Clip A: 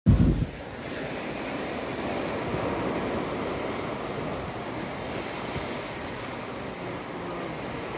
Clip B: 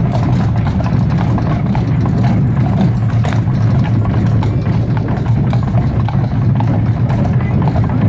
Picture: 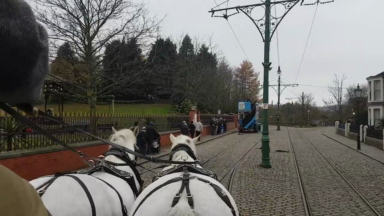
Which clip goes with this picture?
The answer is B